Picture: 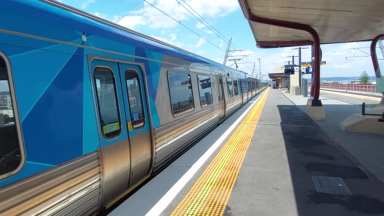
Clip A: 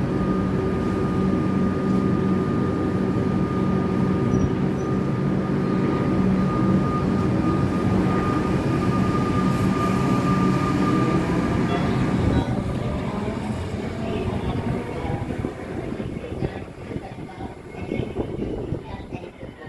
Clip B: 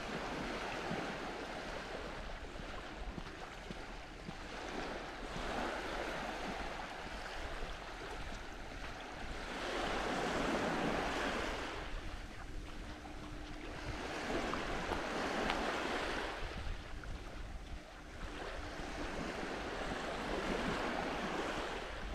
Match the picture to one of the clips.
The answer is A